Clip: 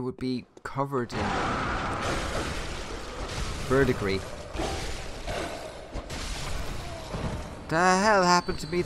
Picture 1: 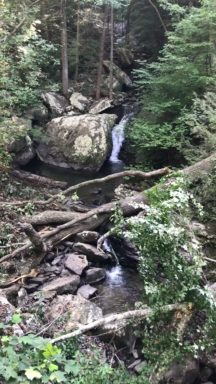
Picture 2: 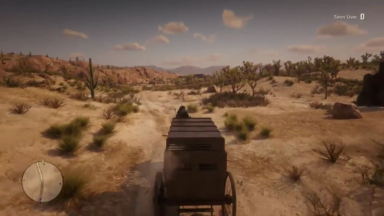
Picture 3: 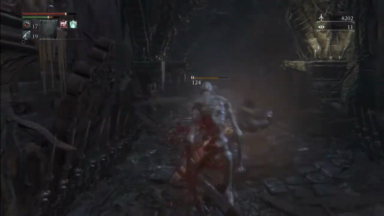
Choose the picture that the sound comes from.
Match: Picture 3